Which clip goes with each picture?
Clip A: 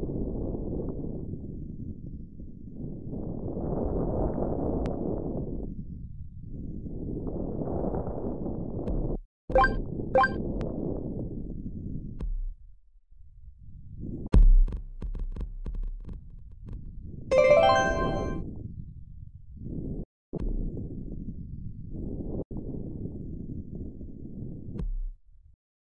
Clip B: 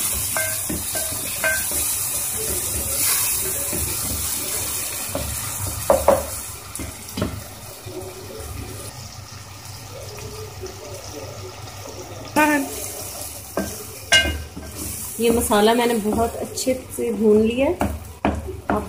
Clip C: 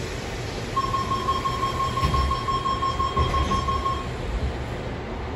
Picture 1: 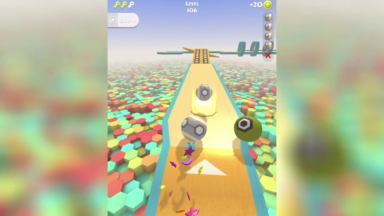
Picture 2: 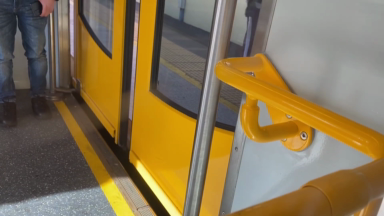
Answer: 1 A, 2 C